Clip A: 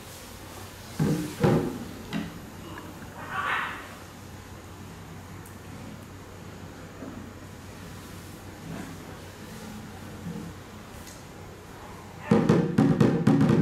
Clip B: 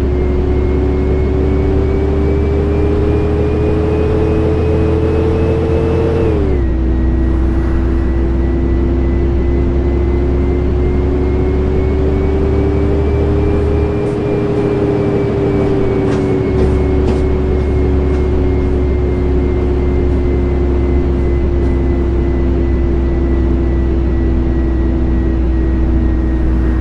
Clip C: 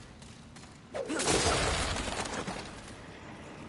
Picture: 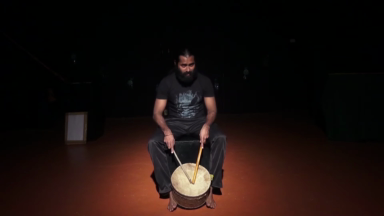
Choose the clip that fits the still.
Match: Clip A